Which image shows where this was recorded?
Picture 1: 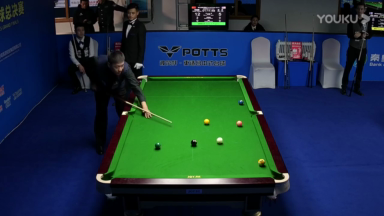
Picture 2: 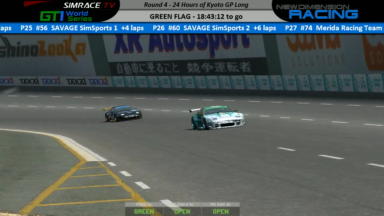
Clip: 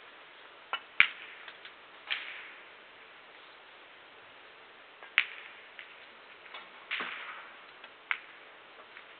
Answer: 1